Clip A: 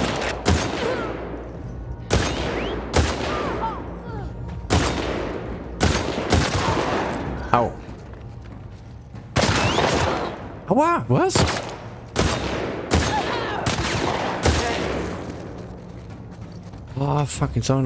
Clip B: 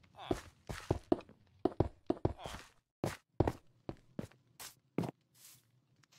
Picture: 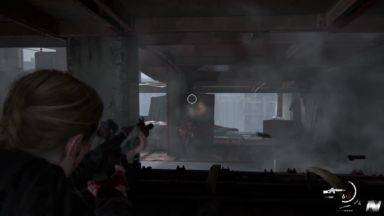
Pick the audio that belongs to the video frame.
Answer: A